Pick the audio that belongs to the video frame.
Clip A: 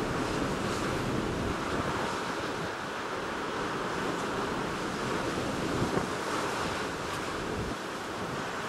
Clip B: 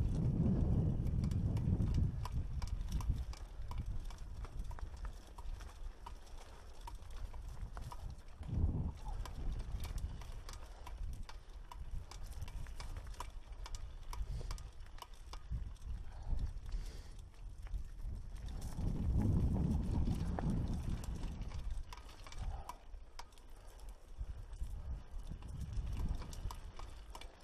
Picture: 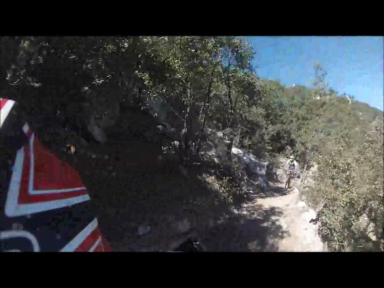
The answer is B